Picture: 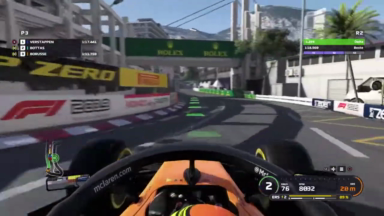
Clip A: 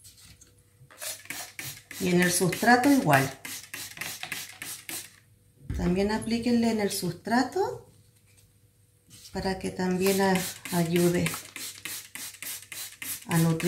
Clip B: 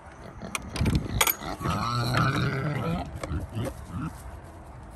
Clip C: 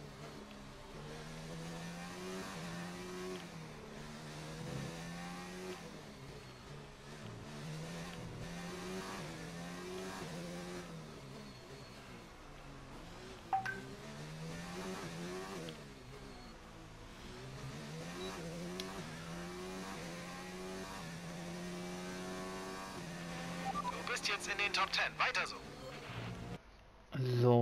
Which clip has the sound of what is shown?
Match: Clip C